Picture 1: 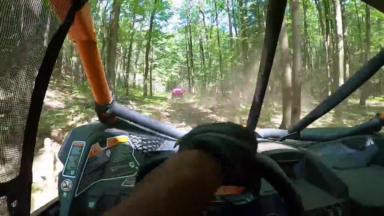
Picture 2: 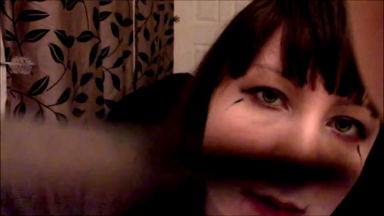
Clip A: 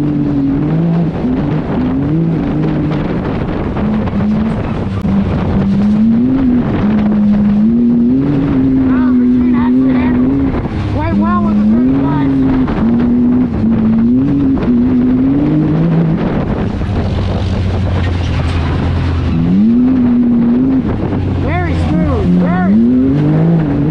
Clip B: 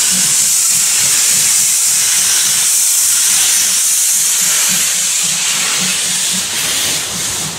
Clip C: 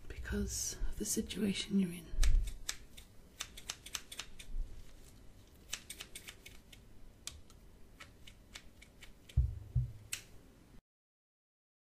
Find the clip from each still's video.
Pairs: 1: A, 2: C